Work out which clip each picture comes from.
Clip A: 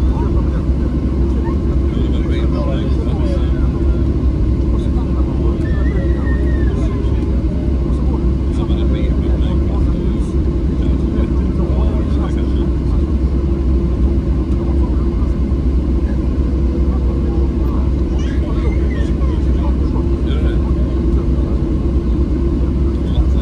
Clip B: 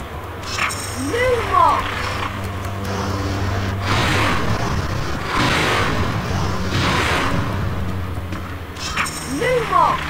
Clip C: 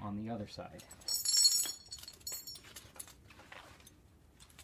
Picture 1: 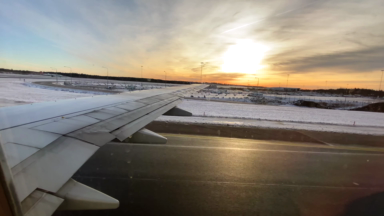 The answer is A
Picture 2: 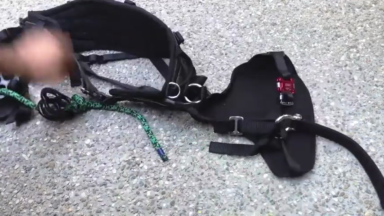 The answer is C